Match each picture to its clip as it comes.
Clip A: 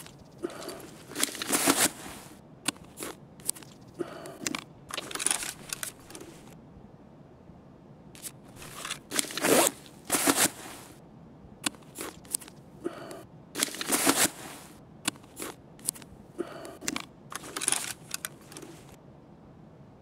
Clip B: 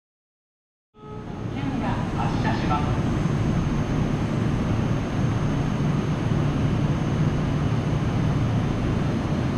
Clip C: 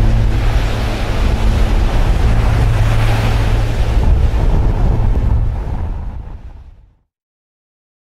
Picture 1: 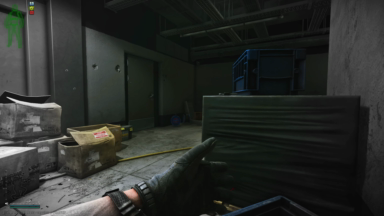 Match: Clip A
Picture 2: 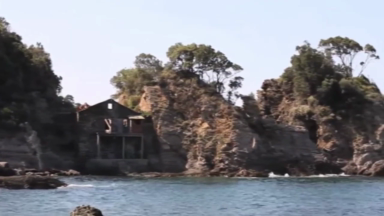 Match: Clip C